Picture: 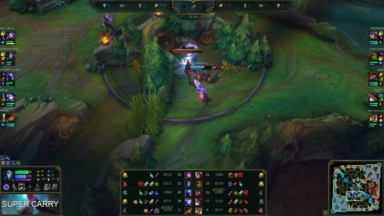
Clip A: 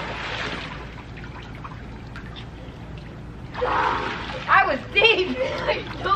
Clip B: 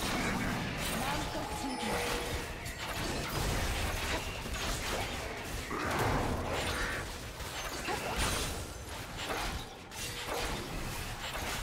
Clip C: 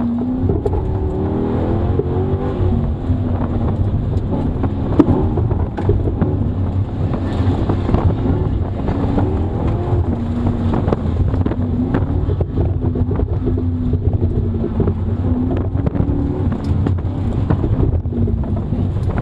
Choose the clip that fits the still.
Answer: B